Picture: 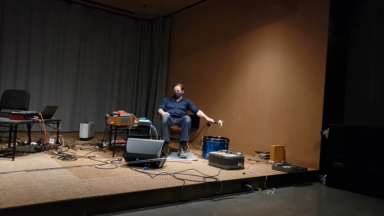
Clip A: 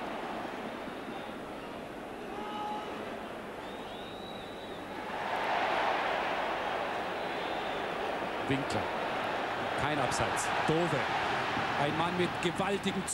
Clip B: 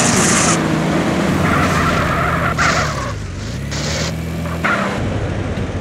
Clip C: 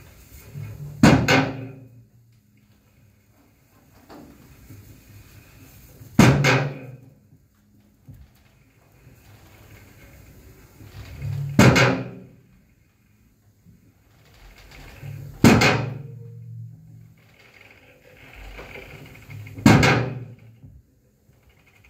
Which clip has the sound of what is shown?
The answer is C